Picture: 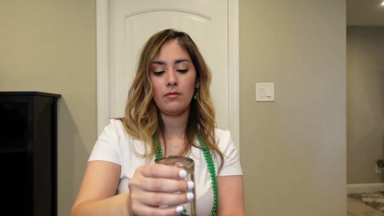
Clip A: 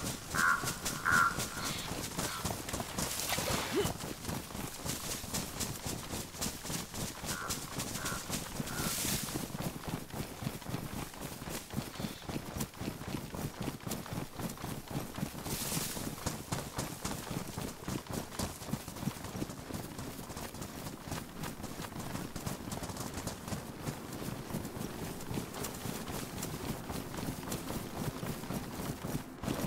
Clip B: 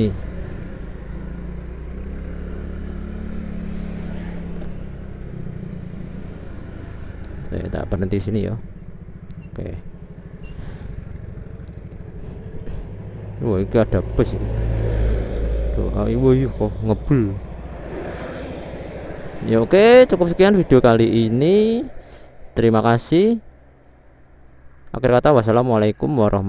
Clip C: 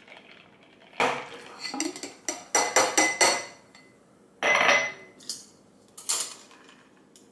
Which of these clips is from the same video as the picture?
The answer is C